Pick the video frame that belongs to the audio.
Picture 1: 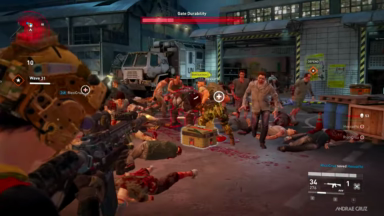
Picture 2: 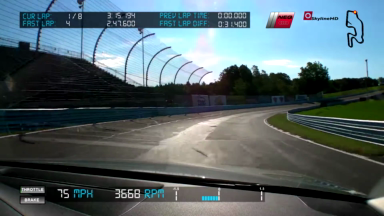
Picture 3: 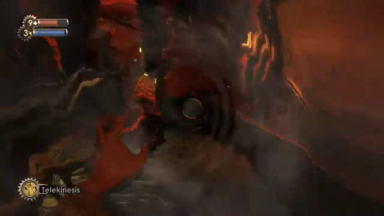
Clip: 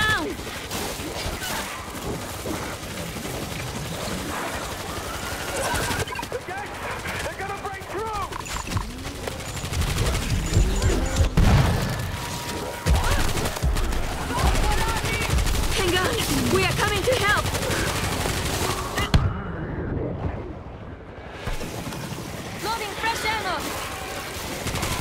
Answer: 1